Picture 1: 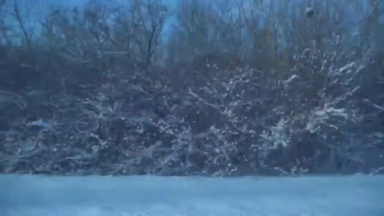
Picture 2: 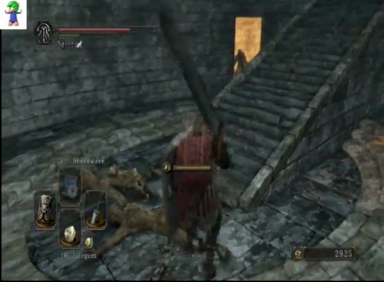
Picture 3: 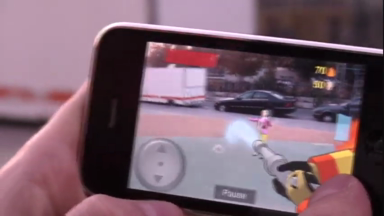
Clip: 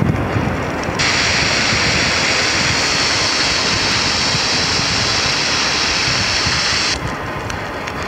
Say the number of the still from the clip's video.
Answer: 3